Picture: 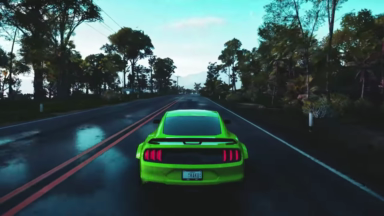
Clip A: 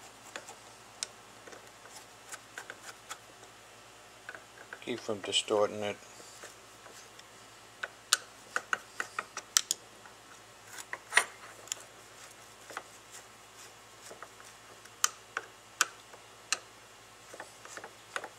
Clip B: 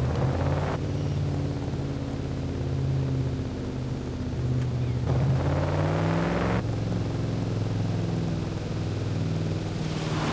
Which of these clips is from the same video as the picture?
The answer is B